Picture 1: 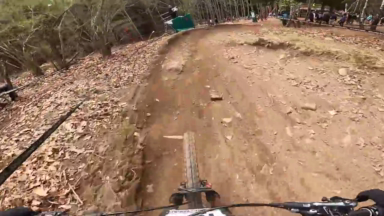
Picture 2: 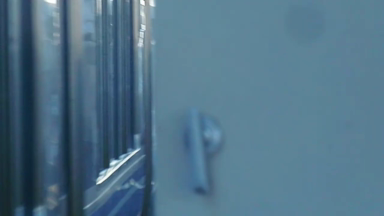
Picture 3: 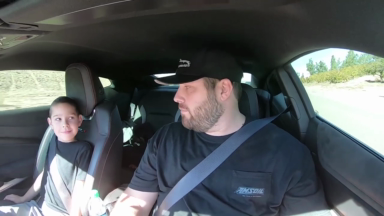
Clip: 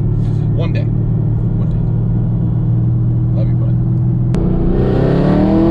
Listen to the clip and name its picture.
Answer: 3